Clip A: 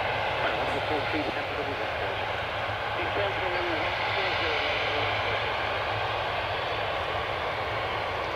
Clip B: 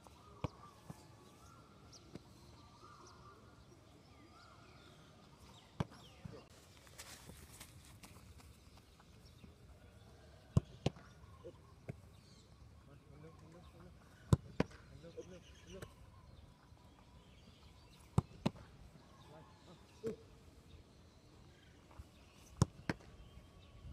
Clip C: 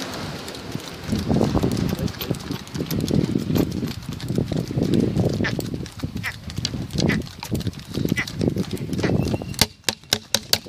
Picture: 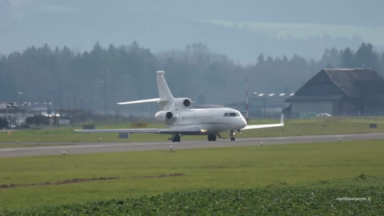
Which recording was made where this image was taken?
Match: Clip A